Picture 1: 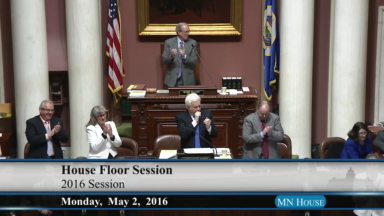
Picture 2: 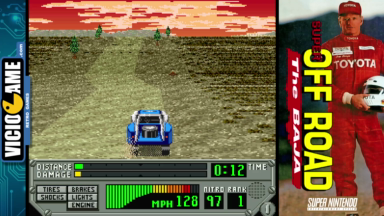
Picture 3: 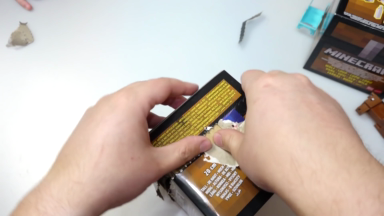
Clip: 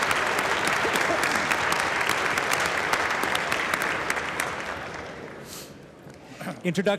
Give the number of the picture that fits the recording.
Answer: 1